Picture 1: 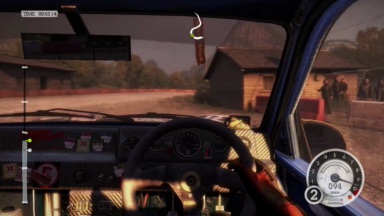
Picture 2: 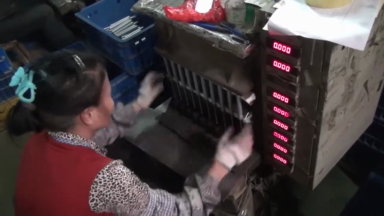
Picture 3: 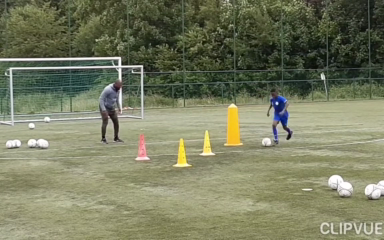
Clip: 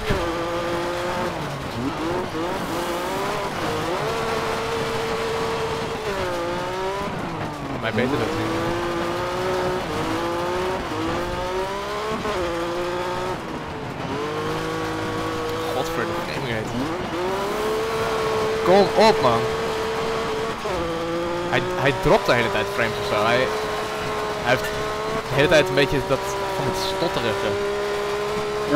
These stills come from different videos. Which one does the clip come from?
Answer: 1